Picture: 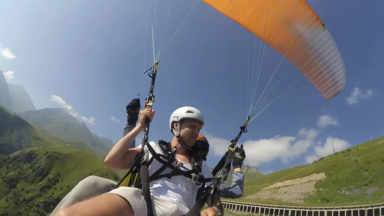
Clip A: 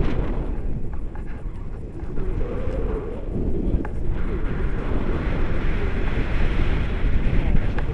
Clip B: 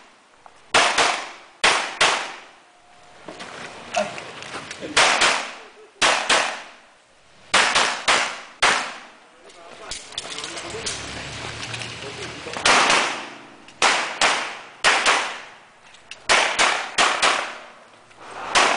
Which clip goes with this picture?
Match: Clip A